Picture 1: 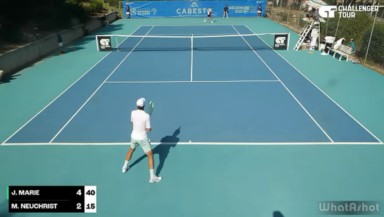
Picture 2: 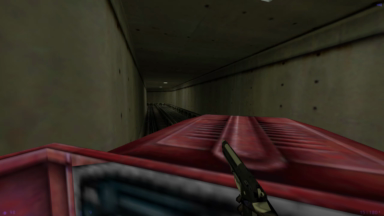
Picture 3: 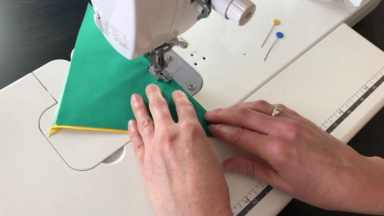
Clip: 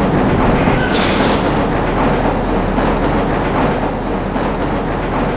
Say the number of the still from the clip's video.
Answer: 2